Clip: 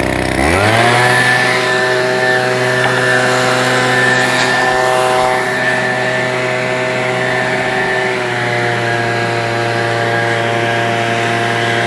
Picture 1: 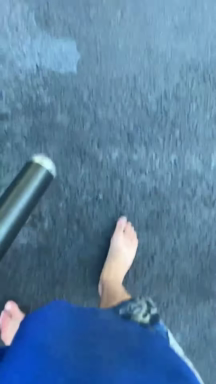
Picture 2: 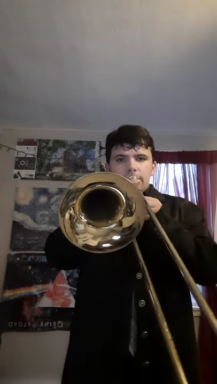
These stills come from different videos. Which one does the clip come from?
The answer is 1